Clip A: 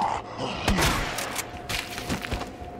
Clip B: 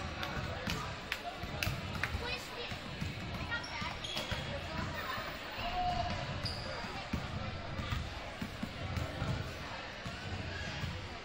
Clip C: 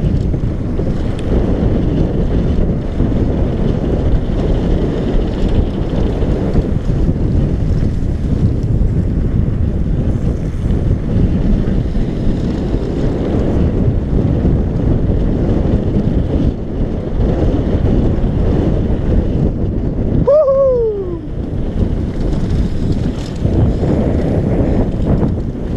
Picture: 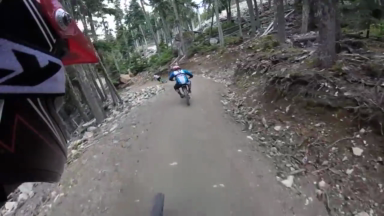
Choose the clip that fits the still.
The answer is C